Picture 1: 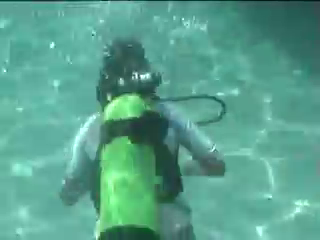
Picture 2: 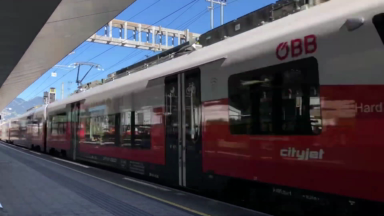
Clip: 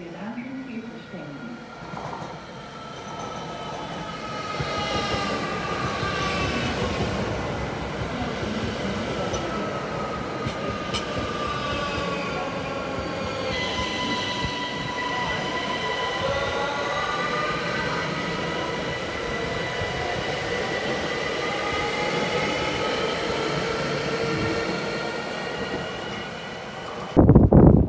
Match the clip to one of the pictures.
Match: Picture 2